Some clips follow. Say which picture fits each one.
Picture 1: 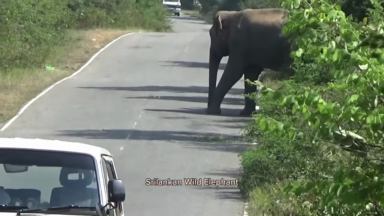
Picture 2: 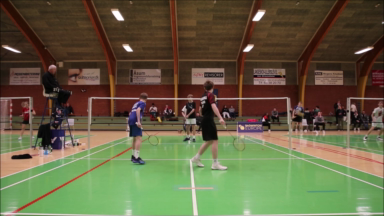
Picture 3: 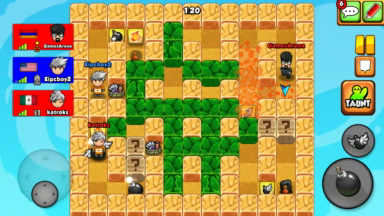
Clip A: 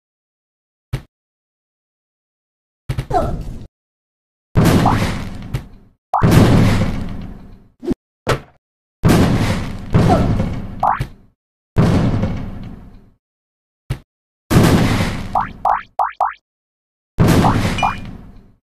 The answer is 3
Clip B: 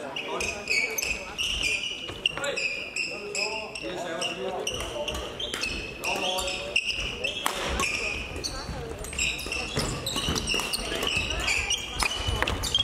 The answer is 2